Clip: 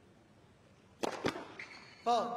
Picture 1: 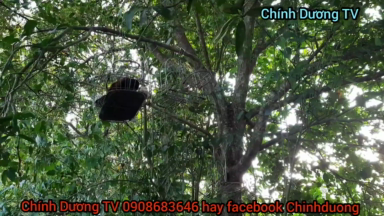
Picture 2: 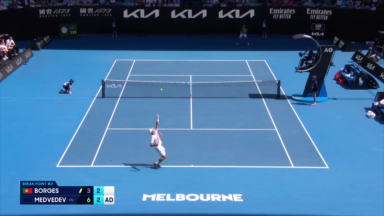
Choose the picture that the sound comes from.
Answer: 2